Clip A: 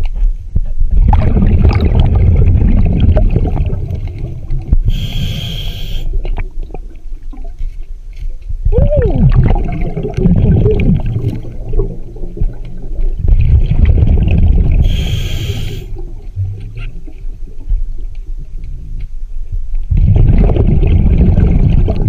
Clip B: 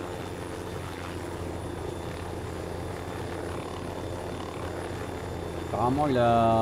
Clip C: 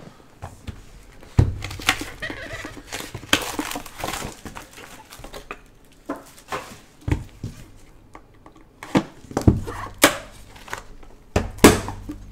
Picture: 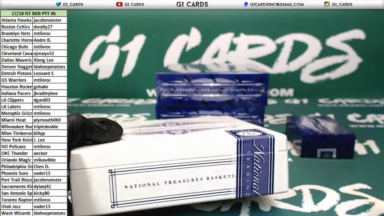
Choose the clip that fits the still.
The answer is C